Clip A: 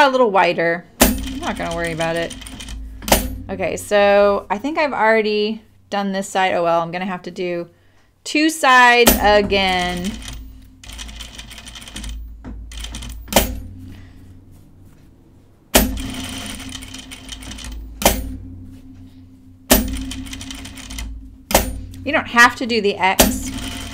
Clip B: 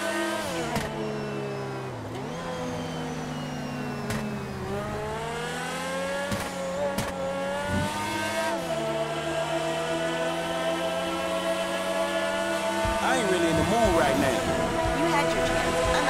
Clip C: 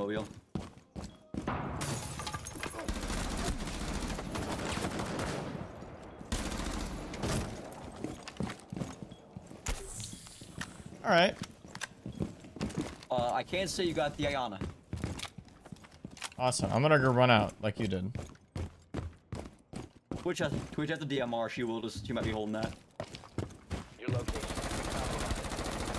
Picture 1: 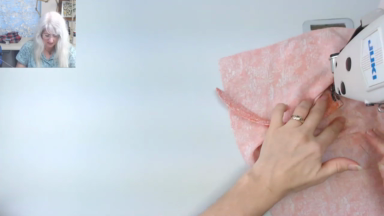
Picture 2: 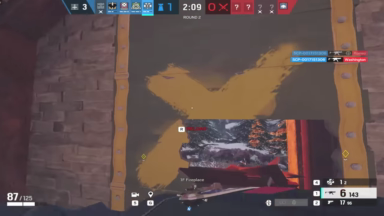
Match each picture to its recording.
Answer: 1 A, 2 C